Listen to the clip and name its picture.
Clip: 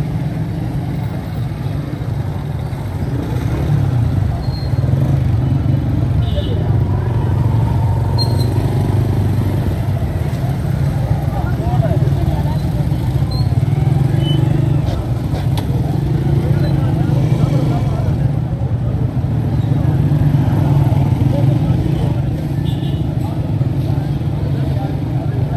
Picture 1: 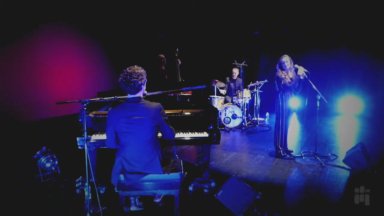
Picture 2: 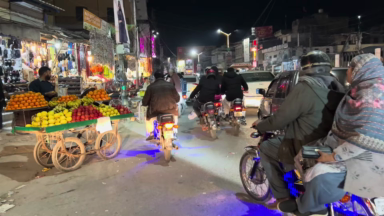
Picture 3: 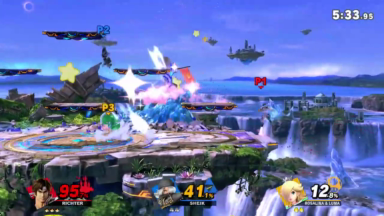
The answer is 2